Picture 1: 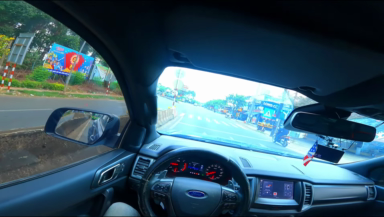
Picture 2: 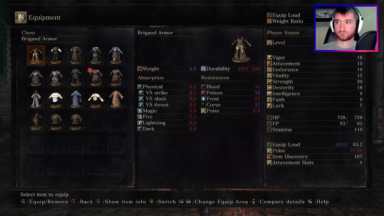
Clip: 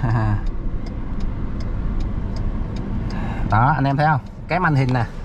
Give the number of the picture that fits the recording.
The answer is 1